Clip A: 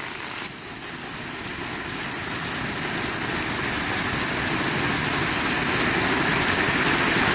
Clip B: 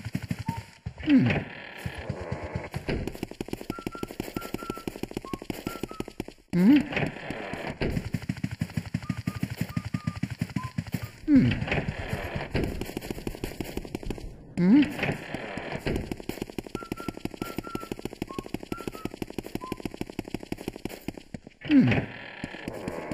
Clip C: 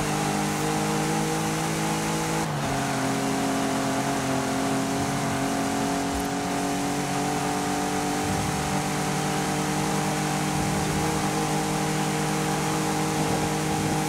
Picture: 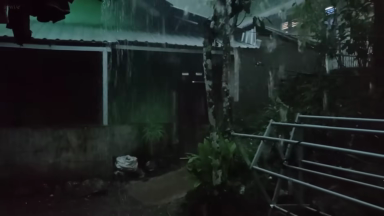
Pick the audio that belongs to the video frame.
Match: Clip A